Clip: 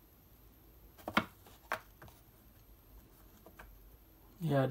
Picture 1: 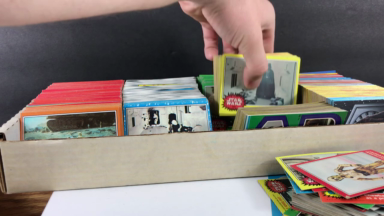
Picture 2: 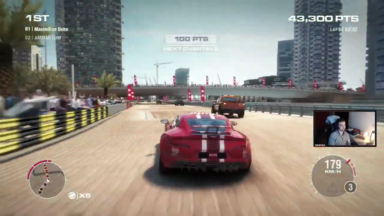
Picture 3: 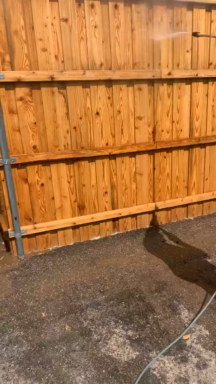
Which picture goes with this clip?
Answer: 1